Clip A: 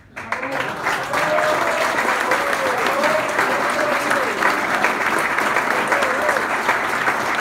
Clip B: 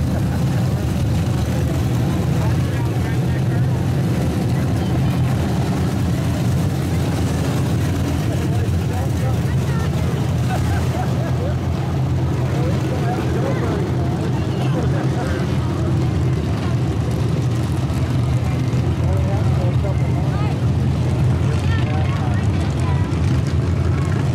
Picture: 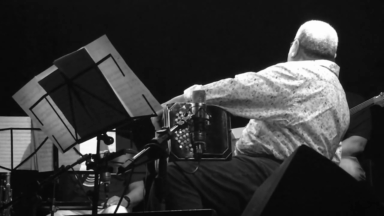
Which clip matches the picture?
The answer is A